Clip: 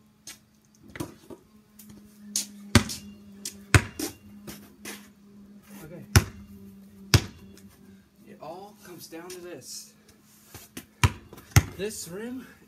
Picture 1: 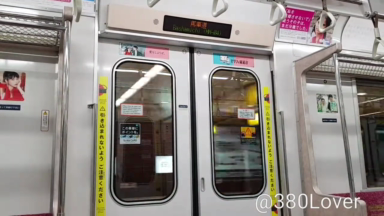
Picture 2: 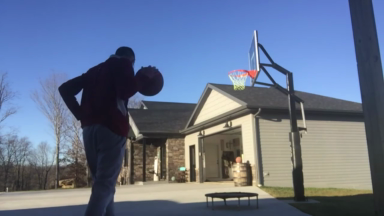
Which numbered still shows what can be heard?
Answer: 2